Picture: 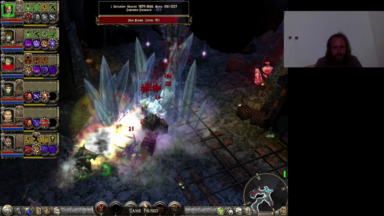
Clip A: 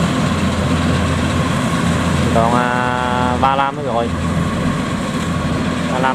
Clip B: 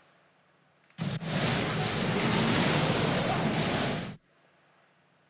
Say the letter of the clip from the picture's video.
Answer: B